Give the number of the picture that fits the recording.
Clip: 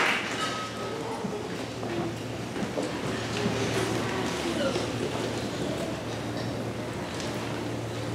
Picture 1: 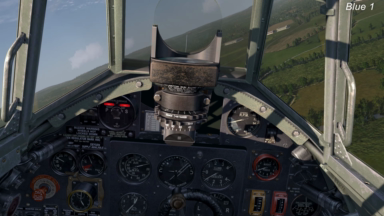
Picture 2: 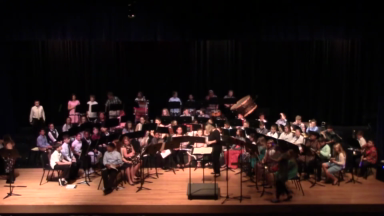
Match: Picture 2